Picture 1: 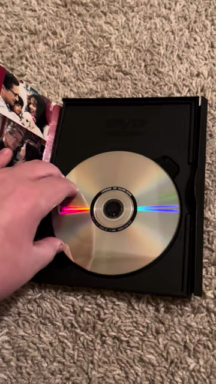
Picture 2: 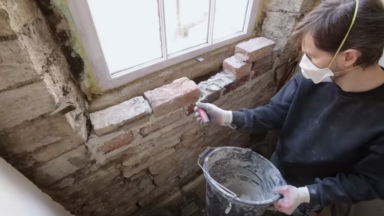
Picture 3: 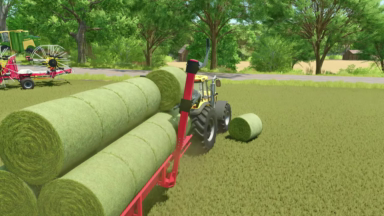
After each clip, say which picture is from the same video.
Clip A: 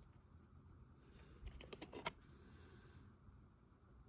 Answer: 1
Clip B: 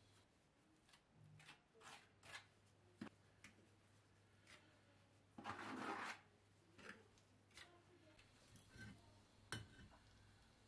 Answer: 2